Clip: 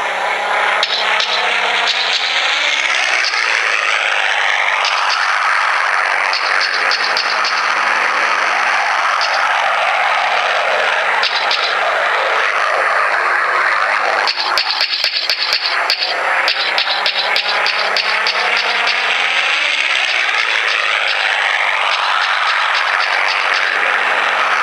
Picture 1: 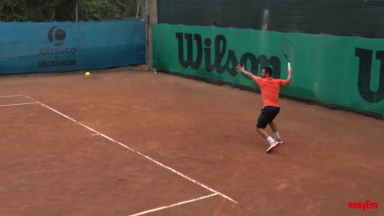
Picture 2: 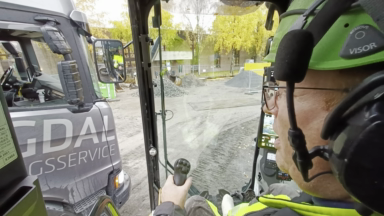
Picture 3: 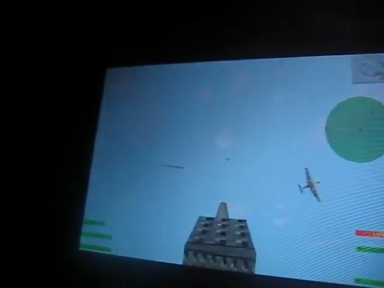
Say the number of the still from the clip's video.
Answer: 3